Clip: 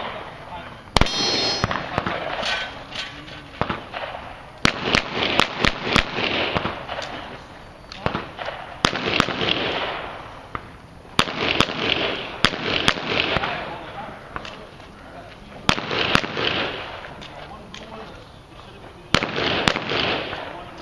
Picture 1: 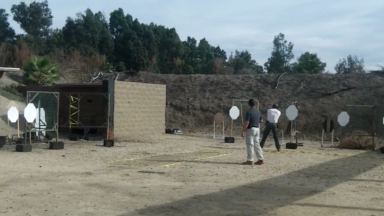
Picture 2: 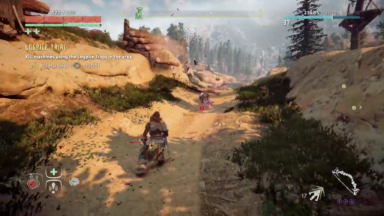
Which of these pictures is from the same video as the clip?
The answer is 1